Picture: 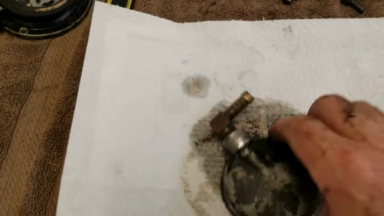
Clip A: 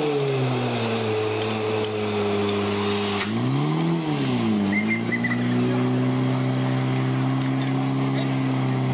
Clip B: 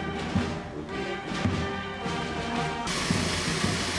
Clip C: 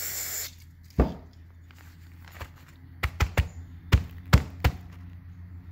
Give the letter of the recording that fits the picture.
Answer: C